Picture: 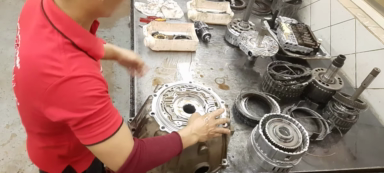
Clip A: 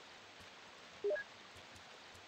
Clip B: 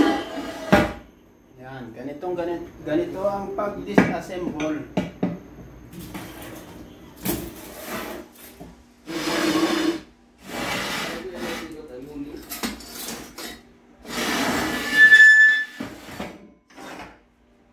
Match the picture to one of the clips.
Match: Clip B